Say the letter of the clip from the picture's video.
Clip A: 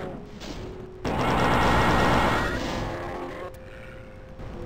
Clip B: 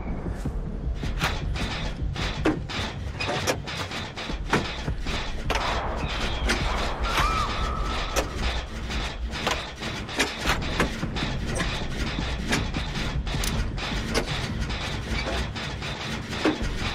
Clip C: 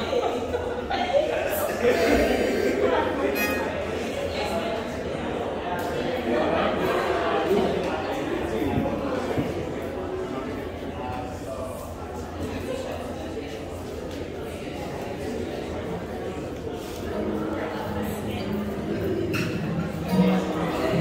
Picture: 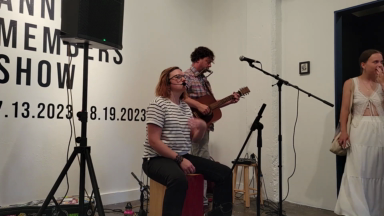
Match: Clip C